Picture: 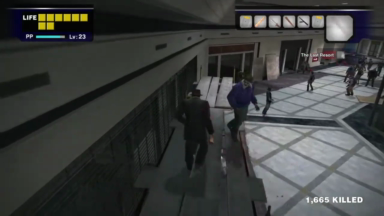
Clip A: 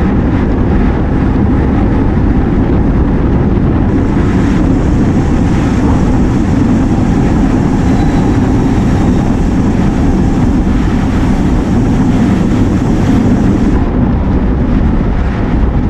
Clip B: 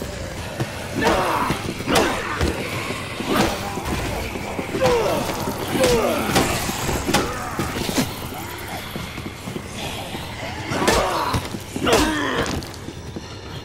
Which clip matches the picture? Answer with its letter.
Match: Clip B